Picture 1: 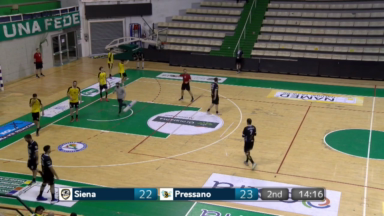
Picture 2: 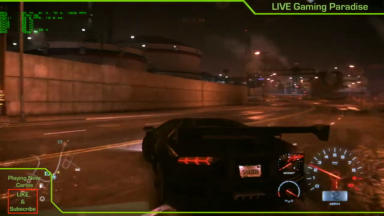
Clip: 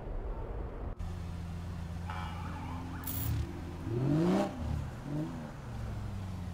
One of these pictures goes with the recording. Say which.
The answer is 2